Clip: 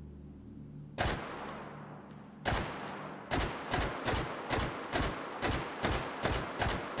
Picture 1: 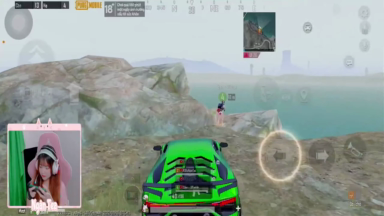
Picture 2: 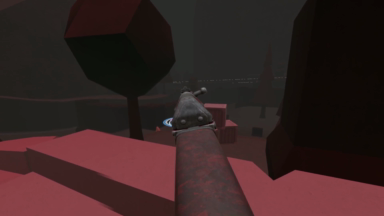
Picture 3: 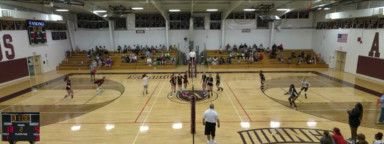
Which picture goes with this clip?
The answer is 2